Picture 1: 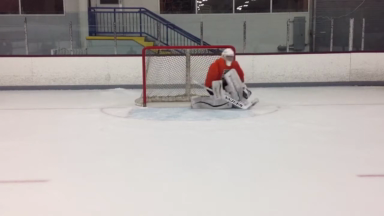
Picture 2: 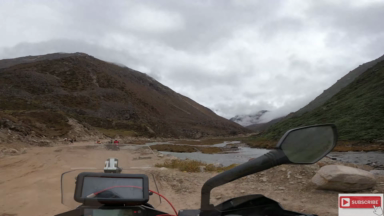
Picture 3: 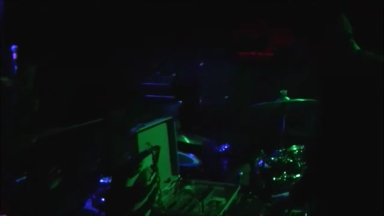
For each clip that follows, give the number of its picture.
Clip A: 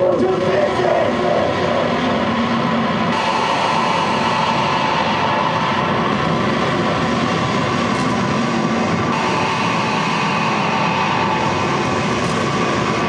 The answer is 3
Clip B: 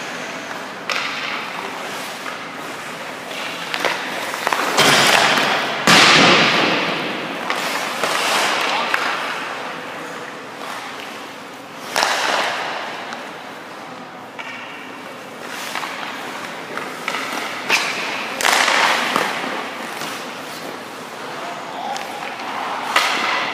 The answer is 1